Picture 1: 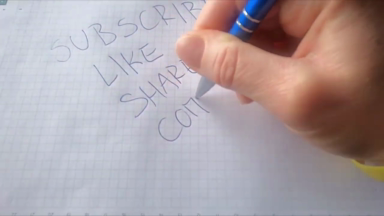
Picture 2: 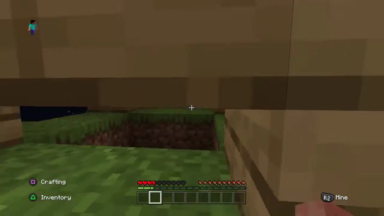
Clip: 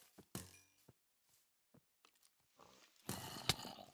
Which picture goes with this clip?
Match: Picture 2